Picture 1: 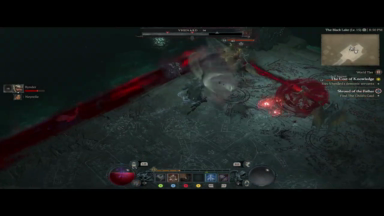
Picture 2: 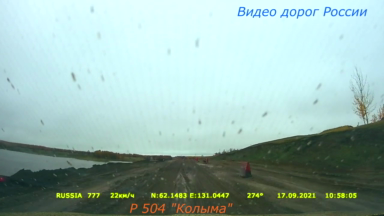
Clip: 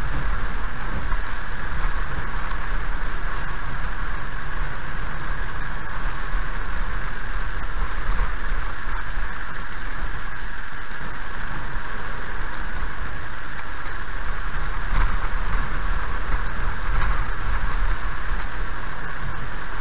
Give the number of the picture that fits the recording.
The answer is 2